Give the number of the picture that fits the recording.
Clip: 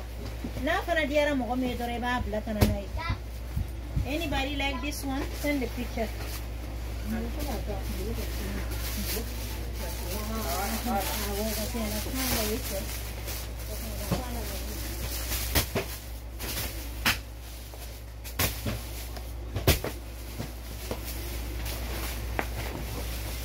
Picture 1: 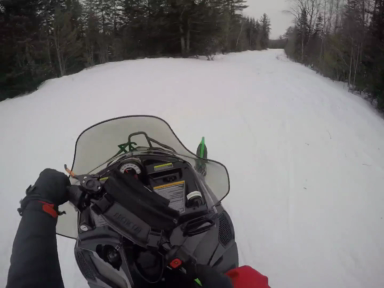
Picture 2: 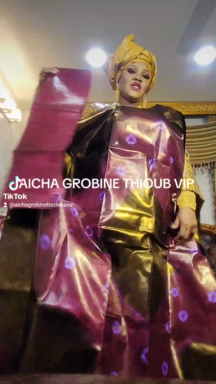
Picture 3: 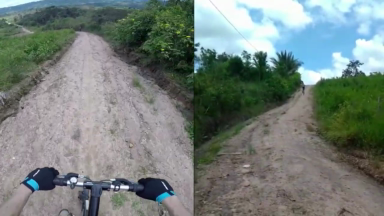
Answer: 2